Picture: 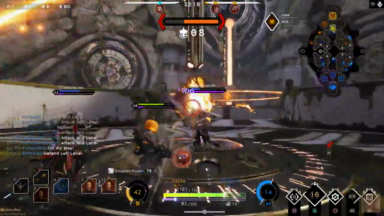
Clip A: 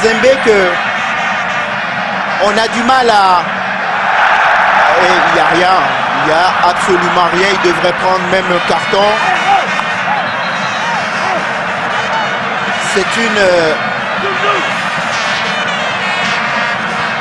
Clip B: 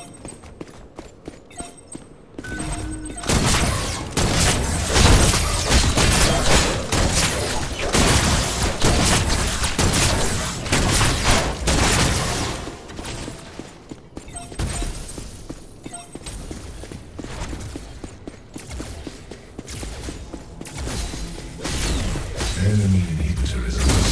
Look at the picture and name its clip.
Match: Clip B